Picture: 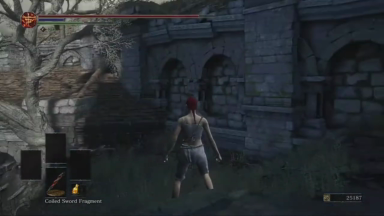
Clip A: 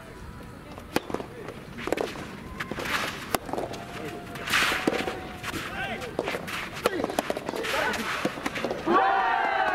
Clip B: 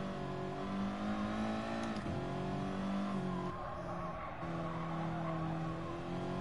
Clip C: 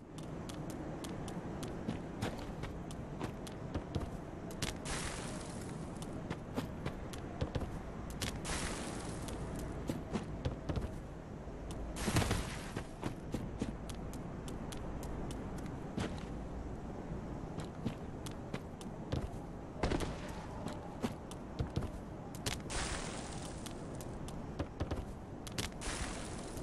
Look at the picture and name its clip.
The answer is C